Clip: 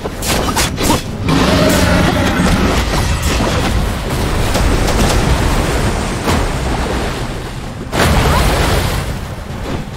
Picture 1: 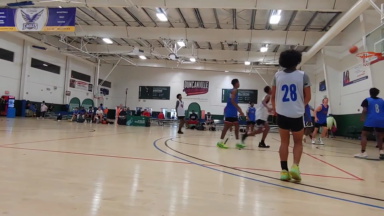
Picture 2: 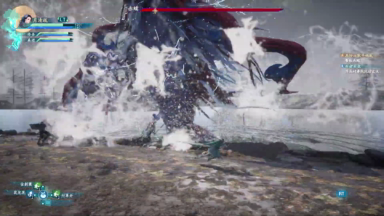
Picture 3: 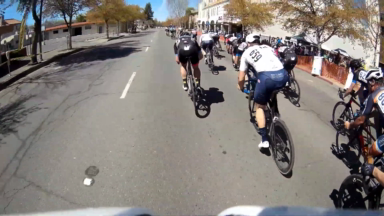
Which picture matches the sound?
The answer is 2